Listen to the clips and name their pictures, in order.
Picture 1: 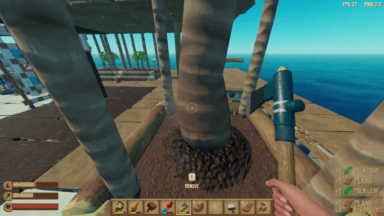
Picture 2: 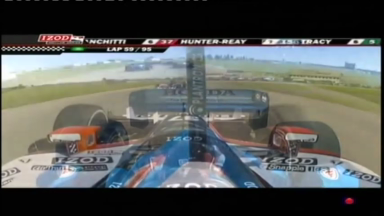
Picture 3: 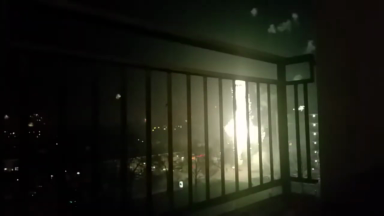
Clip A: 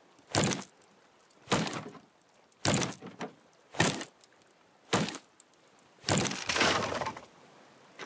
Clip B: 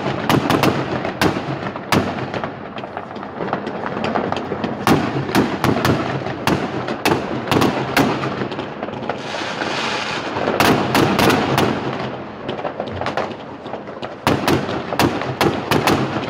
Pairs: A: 1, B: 3